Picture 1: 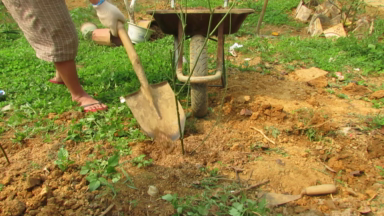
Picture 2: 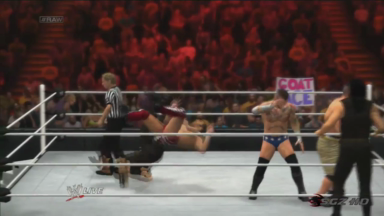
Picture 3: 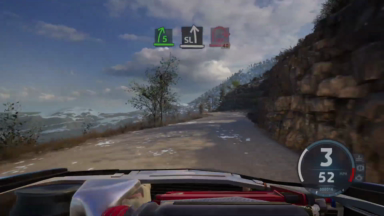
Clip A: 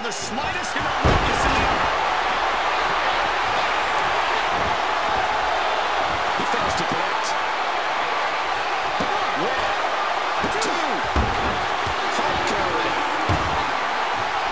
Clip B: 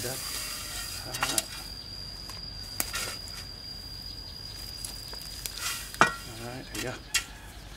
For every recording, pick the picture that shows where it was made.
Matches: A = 2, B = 1